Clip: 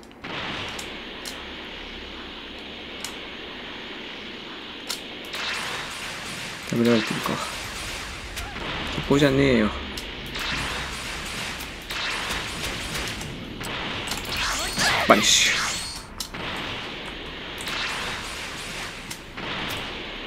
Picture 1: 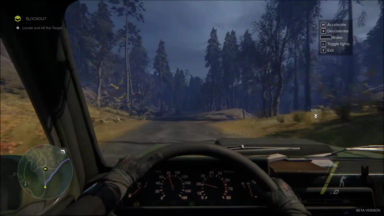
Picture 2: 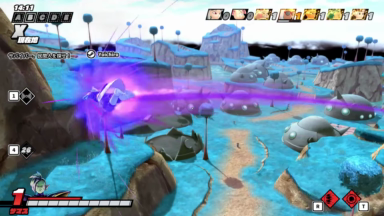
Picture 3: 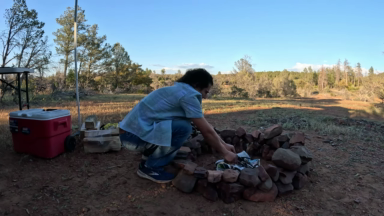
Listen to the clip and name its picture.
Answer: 2